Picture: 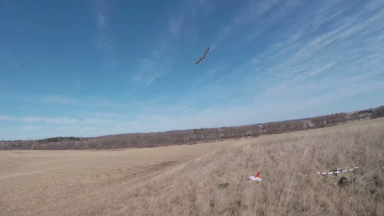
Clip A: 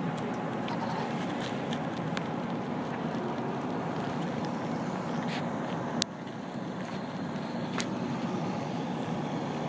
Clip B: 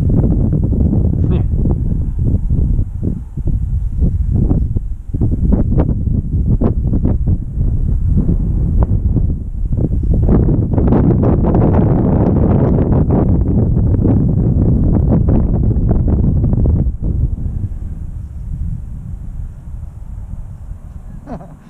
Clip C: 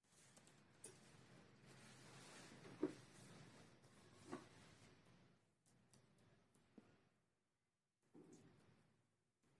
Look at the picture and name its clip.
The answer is B